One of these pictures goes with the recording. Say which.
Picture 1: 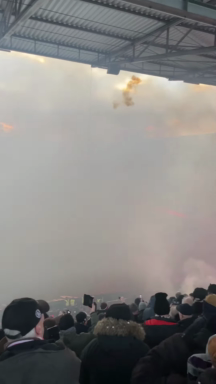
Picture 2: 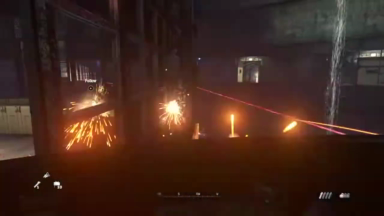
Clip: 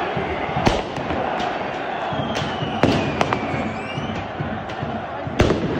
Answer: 1